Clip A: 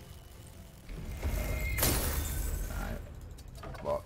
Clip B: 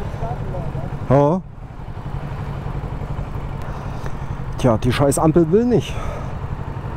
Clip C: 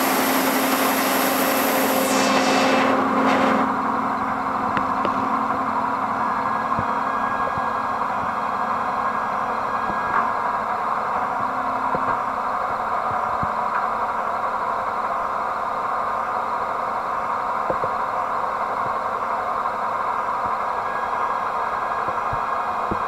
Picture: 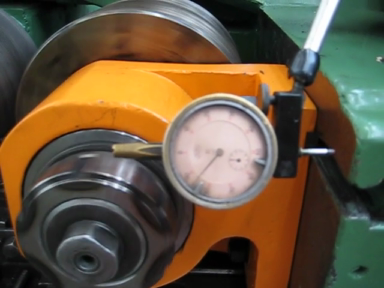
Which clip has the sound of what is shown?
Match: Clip C